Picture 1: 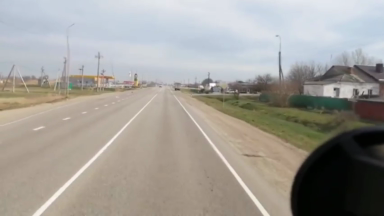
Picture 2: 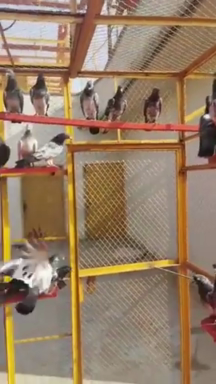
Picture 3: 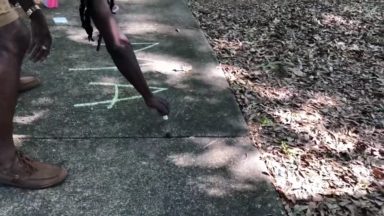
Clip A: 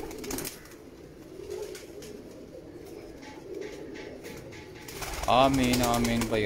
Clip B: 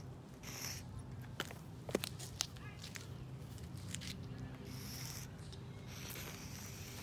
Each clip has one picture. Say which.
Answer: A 2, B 3